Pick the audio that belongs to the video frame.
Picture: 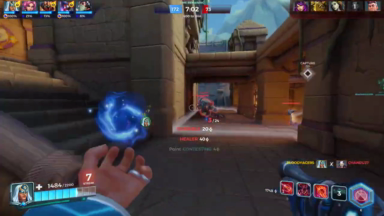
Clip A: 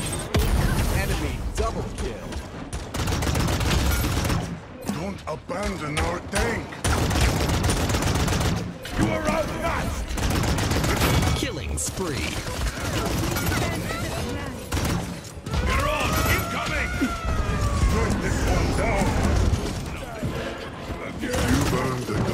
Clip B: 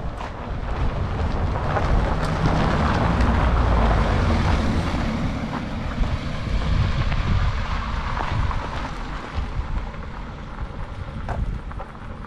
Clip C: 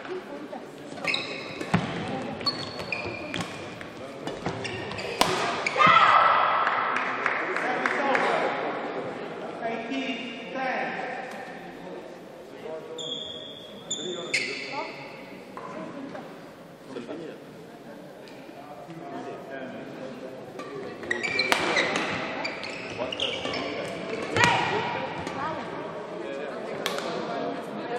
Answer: A